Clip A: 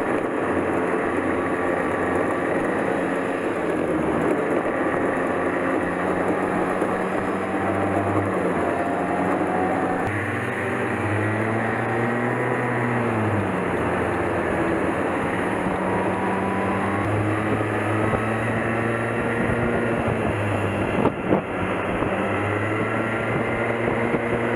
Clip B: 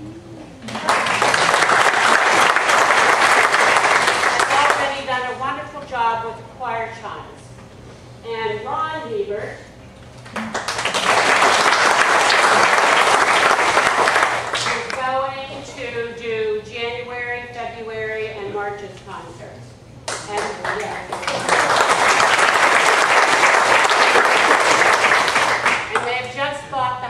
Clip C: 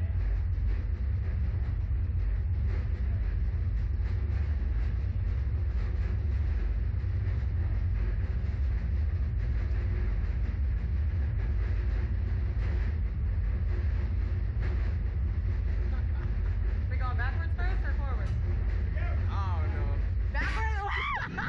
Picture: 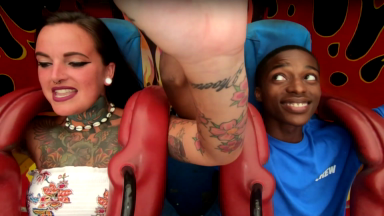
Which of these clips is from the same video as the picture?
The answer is C